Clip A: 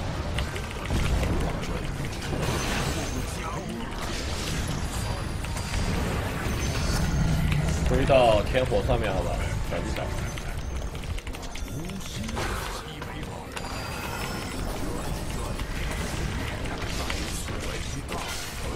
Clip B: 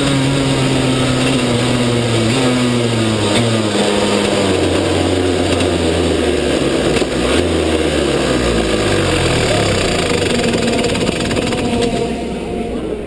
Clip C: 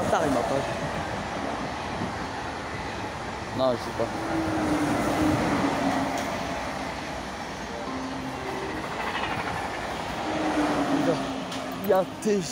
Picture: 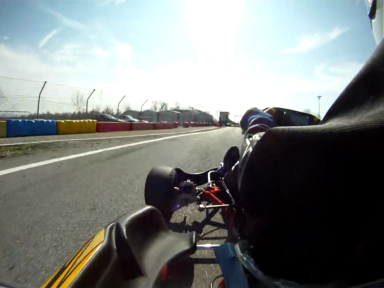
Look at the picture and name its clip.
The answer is B